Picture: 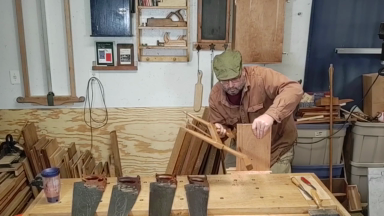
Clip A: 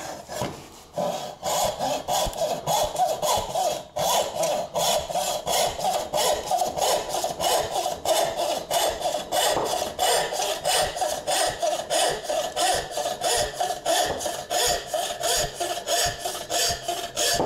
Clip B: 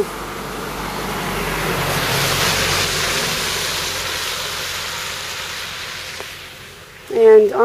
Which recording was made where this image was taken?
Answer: A